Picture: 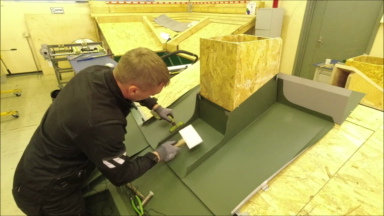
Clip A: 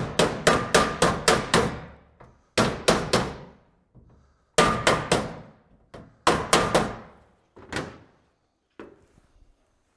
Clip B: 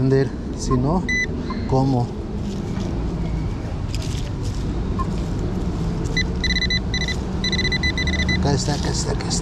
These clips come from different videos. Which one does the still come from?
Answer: A